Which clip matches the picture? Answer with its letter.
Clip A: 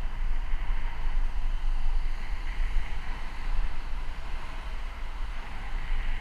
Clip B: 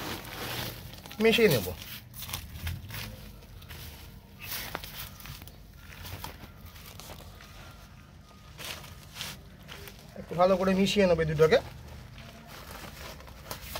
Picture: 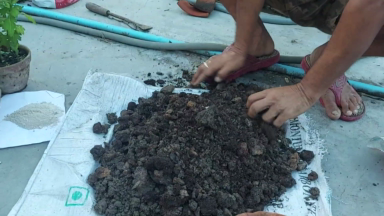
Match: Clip B